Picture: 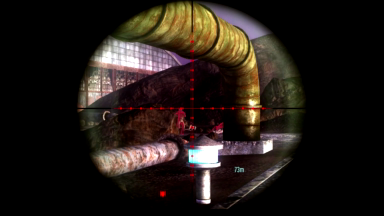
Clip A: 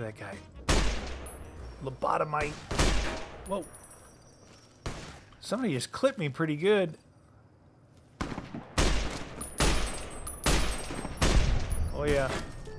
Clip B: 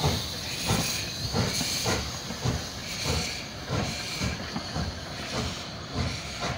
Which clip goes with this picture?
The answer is A